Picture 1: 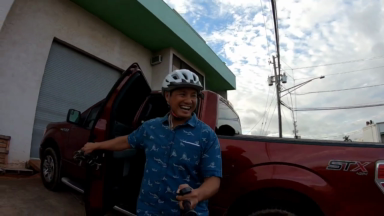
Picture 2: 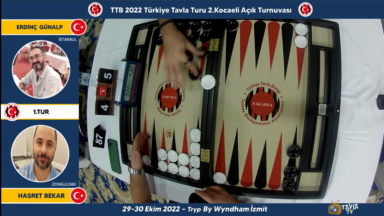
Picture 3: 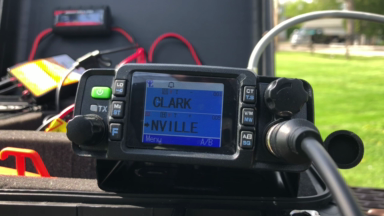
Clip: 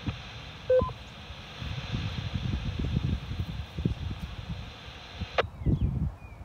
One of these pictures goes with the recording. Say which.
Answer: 3